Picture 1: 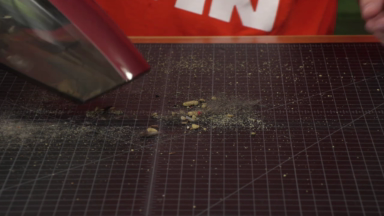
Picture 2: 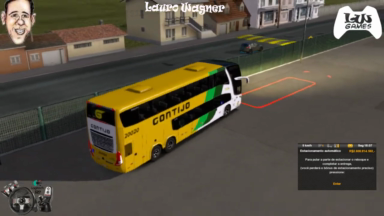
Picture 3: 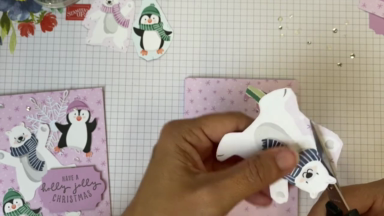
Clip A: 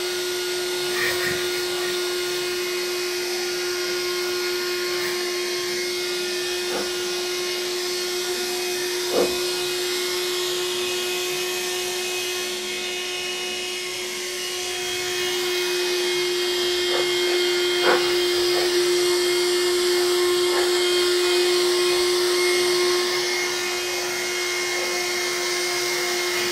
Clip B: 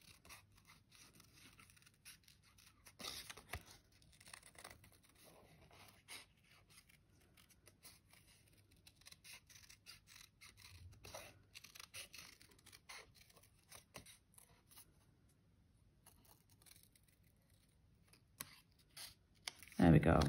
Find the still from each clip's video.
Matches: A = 1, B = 3